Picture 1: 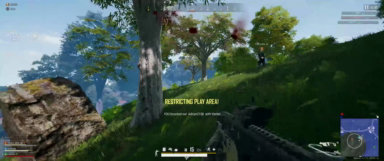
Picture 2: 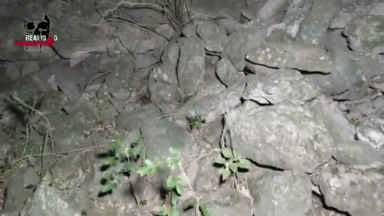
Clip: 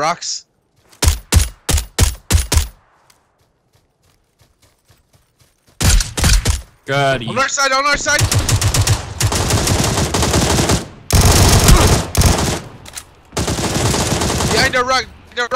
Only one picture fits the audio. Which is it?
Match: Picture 1